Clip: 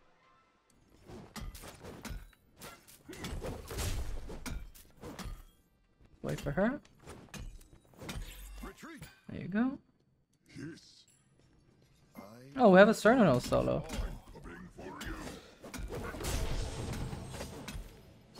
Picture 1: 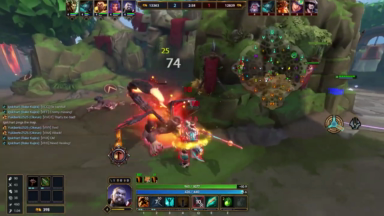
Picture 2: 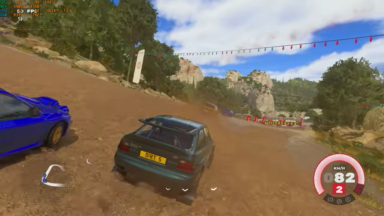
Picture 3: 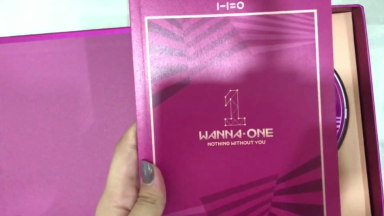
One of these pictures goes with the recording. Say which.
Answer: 1